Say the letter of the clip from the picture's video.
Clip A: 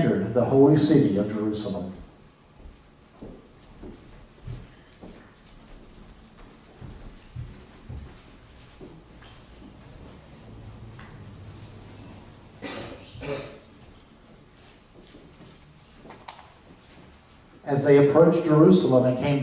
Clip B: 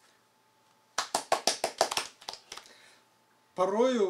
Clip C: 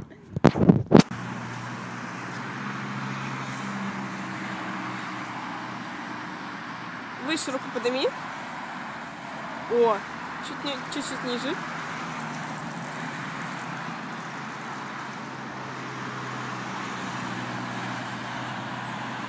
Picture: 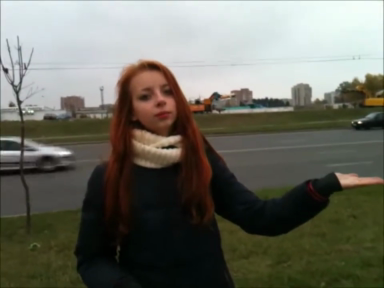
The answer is C